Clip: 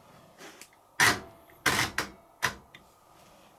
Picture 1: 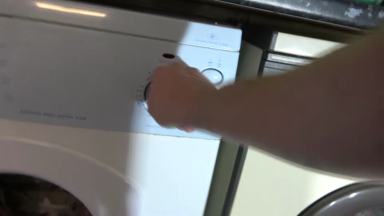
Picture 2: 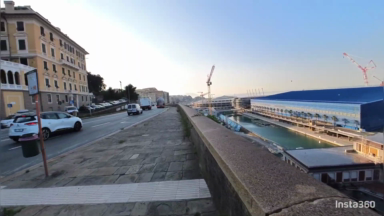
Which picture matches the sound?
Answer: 1